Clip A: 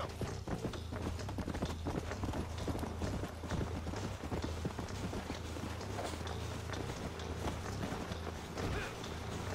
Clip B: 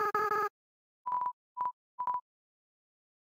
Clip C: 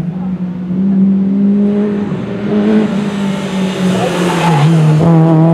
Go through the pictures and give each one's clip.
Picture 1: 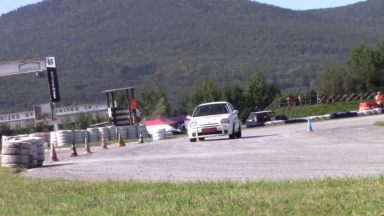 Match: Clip C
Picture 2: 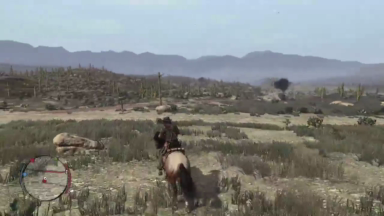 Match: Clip A